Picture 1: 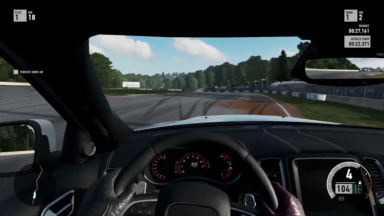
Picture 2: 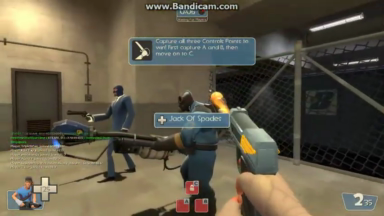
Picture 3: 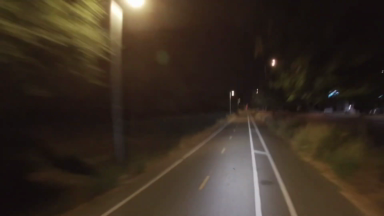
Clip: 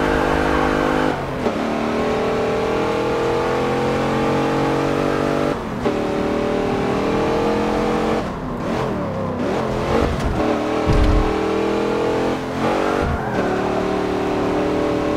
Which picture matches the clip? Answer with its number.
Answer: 1